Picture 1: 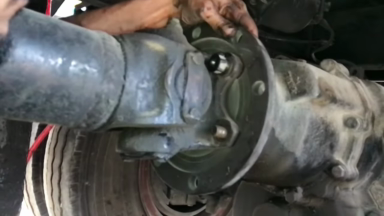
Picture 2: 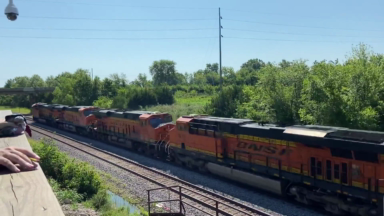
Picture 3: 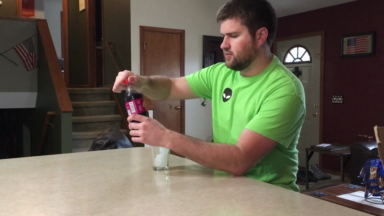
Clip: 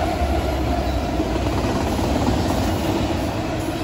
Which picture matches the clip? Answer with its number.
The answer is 2